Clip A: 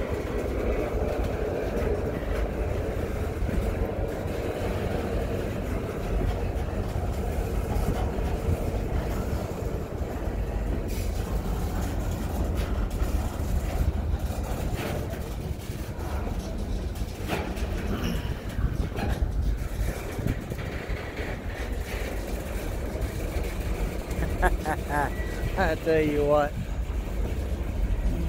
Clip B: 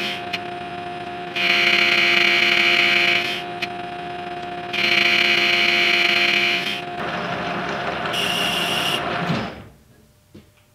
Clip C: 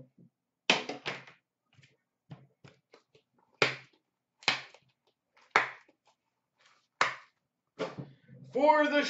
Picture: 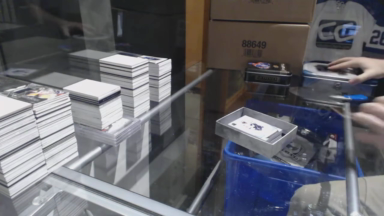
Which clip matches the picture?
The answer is C